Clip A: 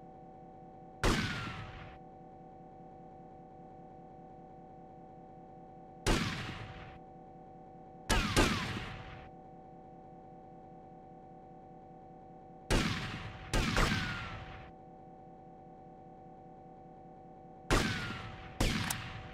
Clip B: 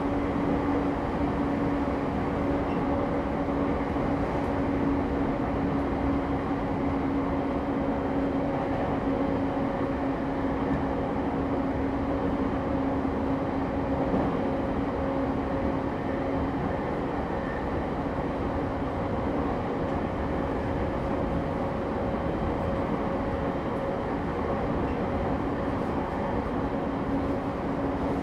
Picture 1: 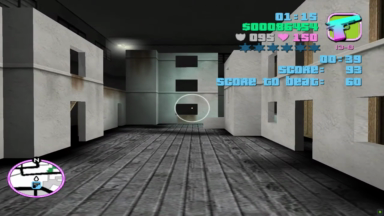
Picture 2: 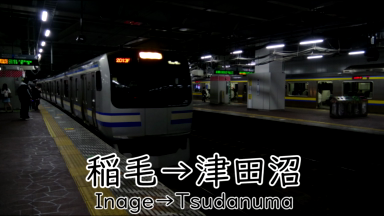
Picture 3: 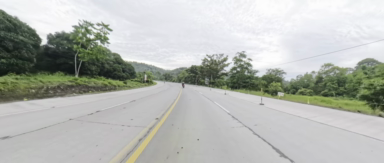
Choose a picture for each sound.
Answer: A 1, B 2